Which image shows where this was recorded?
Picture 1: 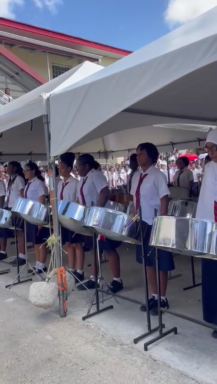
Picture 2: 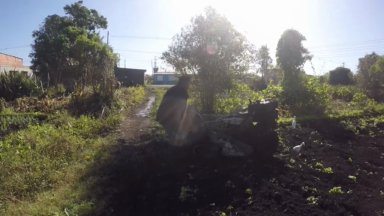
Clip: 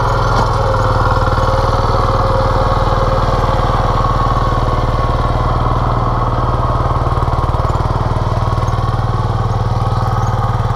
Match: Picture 2